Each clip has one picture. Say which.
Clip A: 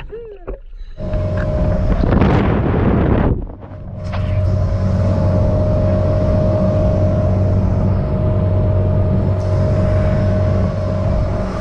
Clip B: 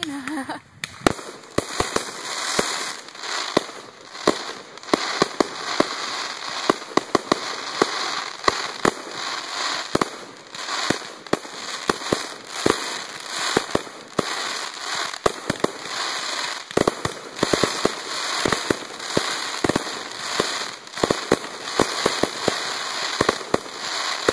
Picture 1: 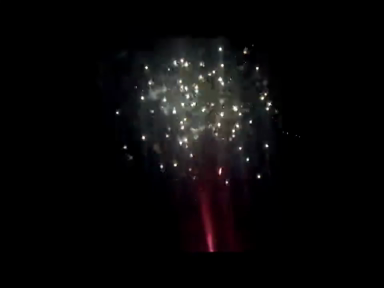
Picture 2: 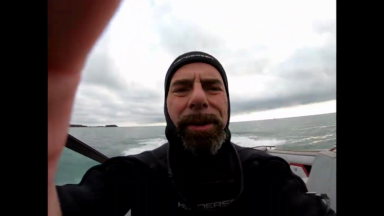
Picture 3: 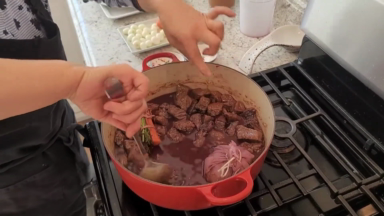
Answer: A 2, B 1